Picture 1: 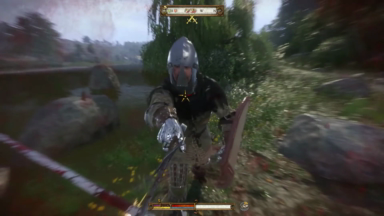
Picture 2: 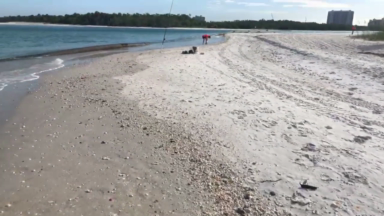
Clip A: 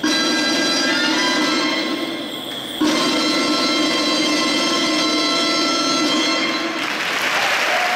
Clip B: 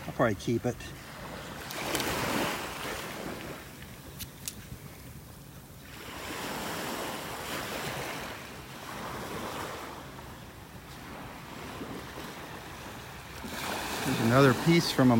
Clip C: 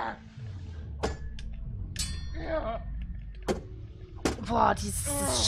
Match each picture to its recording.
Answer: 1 C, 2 B